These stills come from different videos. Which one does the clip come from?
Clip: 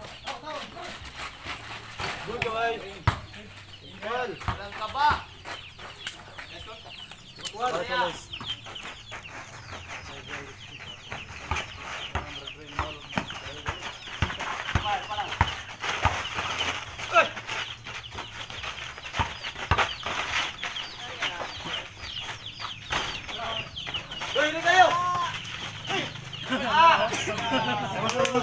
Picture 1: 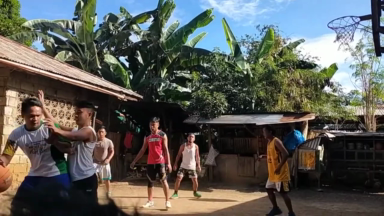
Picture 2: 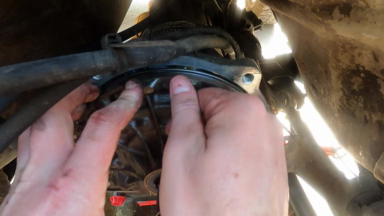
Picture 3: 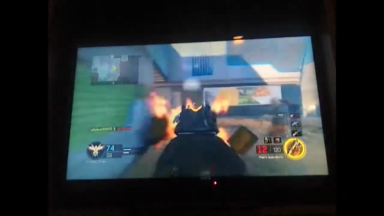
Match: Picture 1